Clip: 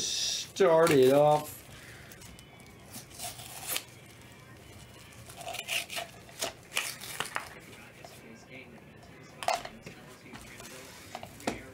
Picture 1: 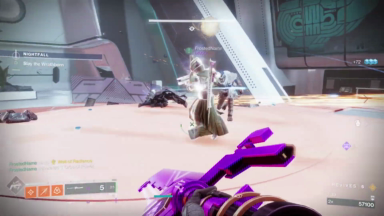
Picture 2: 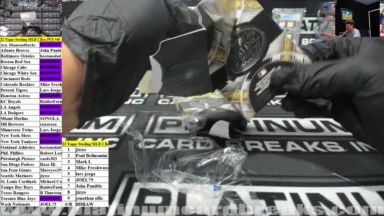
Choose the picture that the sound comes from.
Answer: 2